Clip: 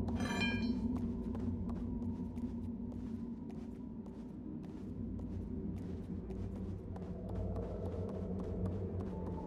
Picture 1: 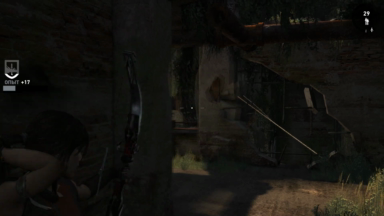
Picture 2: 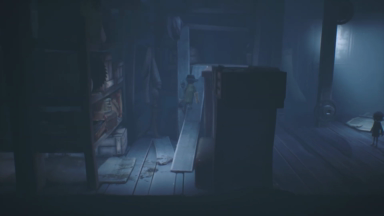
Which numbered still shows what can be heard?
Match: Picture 2